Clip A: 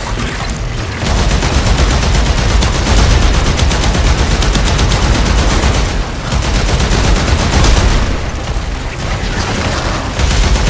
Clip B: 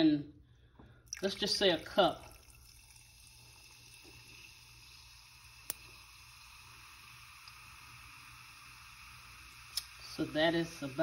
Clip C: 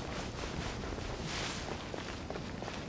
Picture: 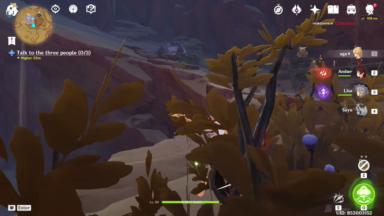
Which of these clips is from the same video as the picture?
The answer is C